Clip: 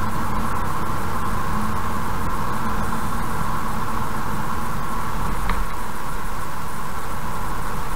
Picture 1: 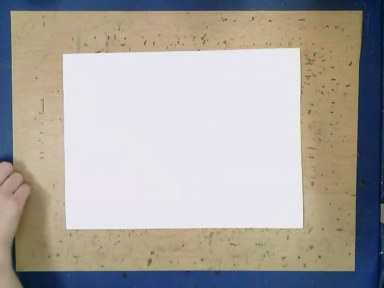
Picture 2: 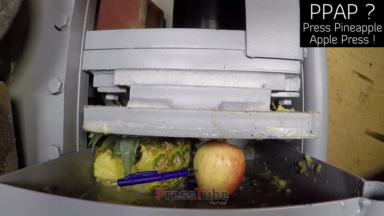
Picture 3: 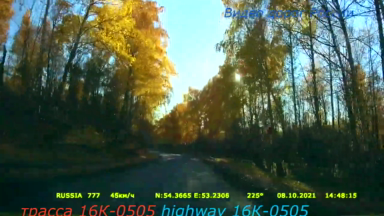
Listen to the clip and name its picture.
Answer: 3